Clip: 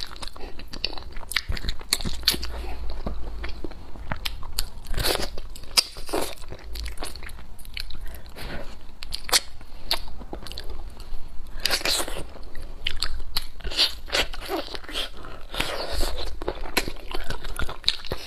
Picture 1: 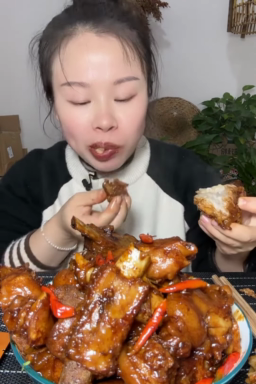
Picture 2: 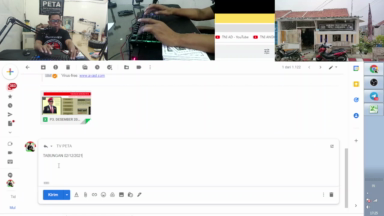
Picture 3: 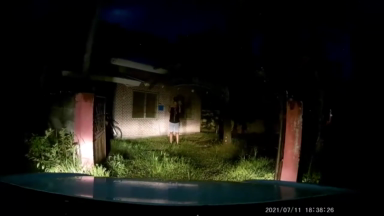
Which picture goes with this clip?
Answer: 1